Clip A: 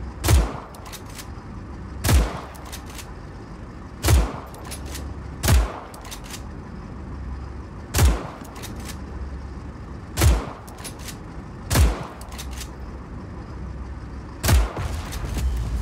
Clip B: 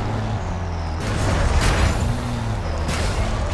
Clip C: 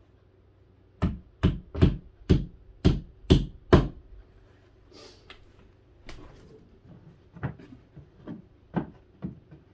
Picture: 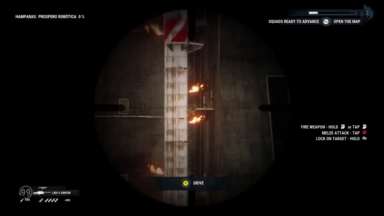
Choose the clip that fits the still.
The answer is A